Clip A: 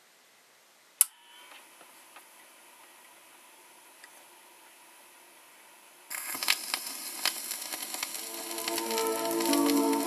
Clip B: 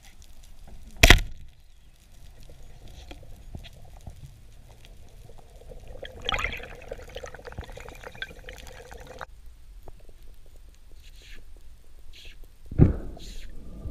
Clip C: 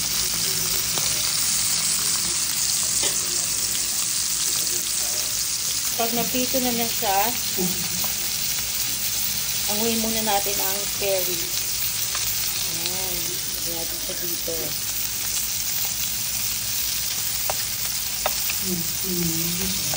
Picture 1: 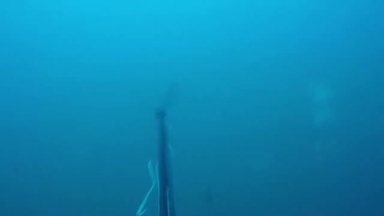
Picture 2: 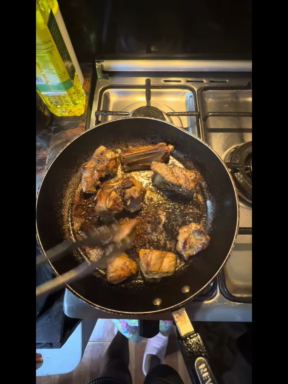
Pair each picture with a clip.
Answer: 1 B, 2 C